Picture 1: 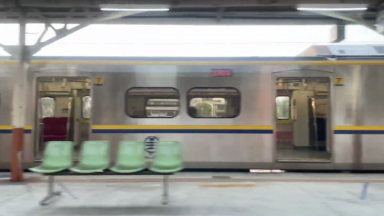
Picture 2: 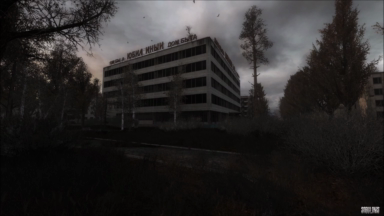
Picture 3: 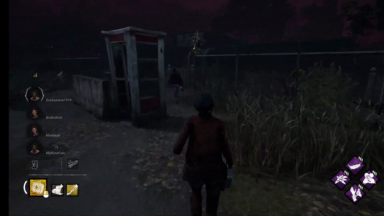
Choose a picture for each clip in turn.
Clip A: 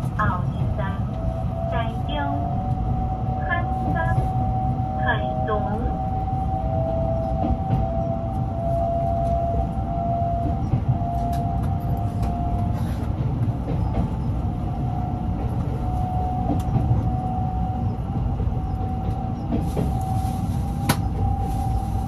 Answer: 1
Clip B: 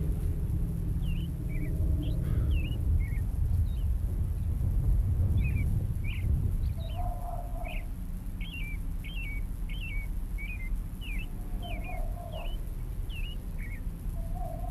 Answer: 2